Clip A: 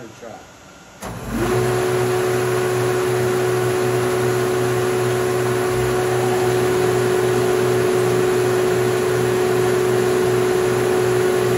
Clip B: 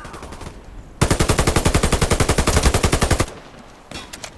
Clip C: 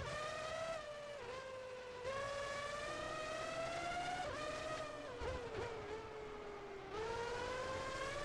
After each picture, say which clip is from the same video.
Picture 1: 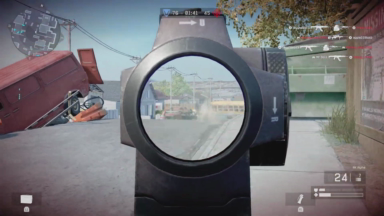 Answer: B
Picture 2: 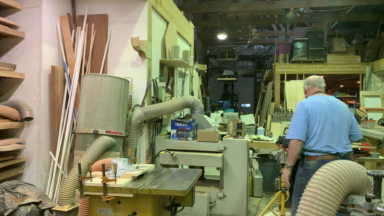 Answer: A